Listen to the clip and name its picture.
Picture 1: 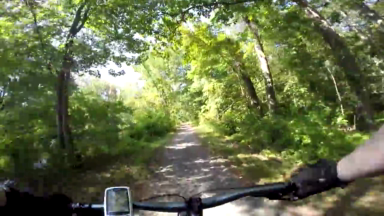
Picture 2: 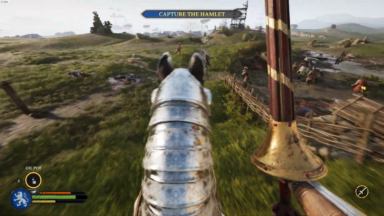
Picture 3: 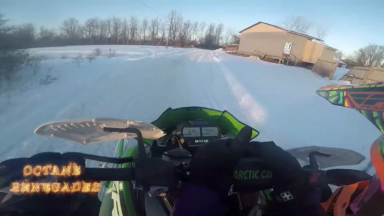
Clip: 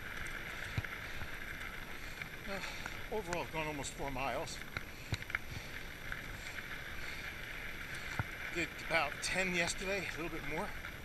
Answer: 1